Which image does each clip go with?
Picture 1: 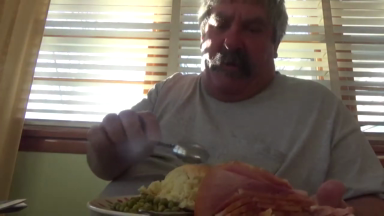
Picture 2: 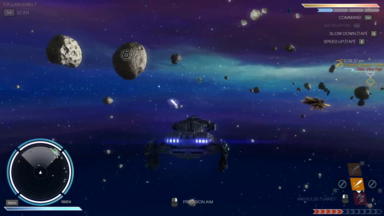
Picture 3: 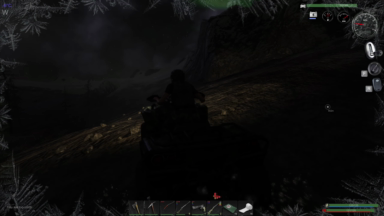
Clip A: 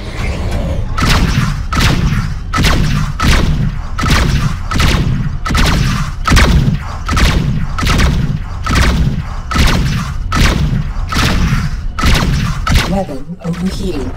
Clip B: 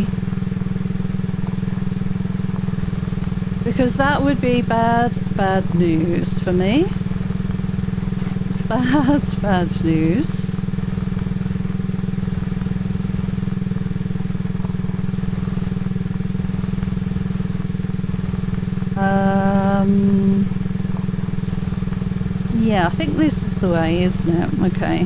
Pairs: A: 2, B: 3